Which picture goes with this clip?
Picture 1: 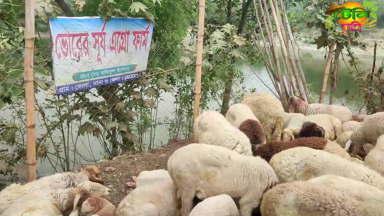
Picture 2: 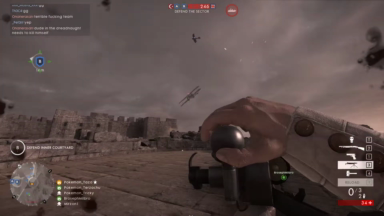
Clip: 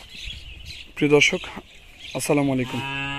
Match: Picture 1